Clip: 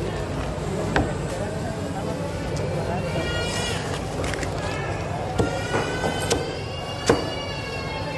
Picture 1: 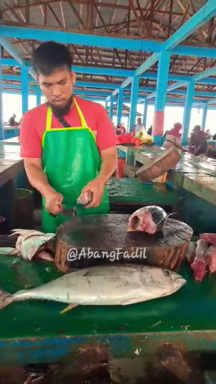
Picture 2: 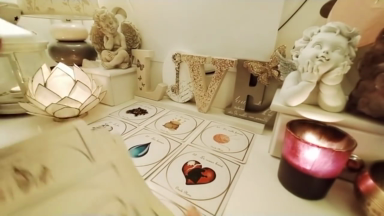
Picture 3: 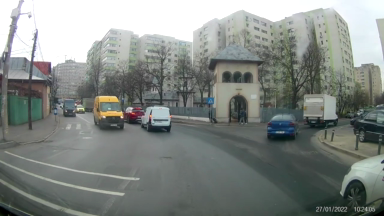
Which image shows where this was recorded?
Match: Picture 1